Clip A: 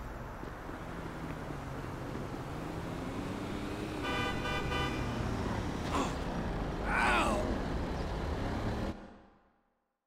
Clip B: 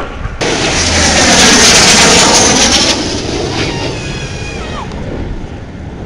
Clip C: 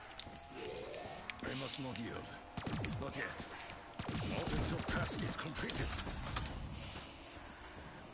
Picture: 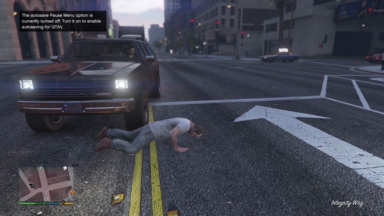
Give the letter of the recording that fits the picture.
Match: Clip A